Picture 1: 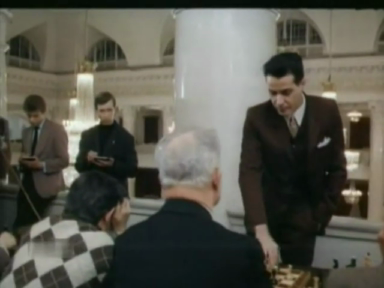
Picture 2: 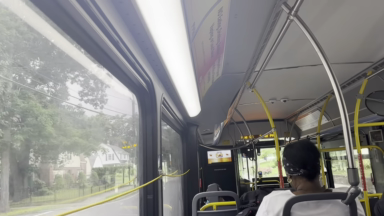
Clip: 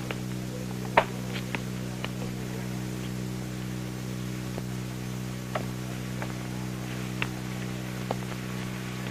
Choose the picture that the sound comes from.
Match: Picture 1